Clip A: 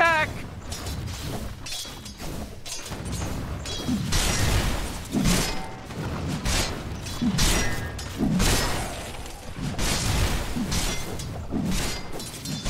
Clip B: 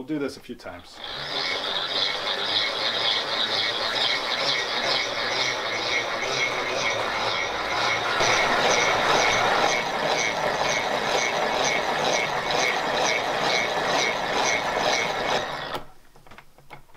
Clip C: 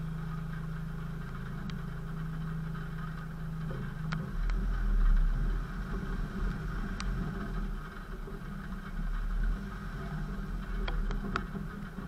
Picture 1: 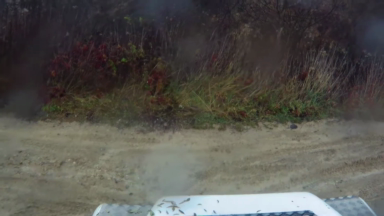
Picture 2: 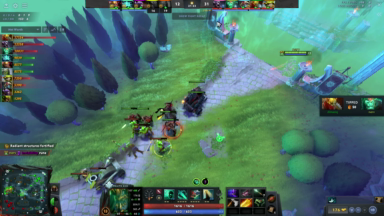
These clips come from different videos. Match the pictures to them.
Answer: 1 C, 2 A